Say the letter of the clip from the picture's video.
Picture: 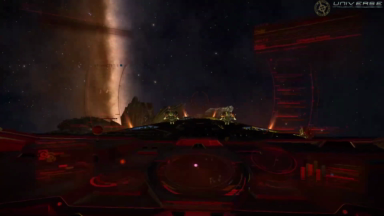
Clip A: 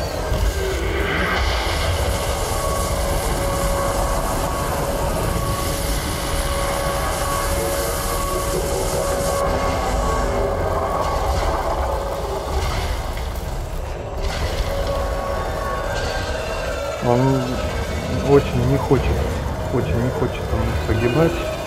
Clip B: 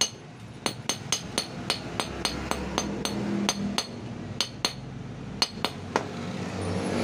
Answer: A